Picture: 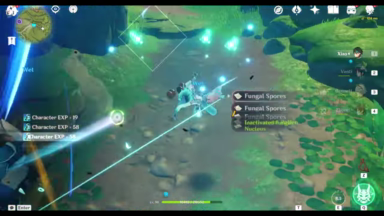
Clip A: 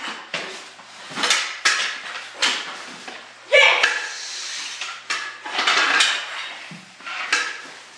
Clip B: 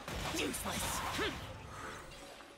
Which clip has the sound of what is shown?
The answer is B